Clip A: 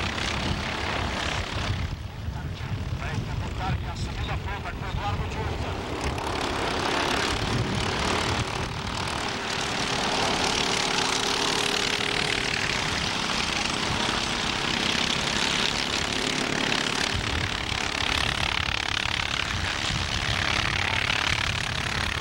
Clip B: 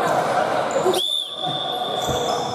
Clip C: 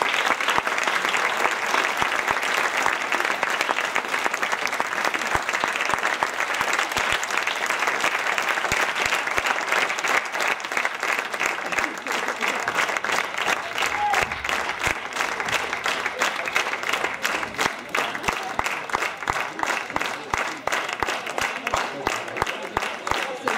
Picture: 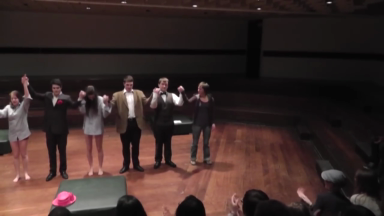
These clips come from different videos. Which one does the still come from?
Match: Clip C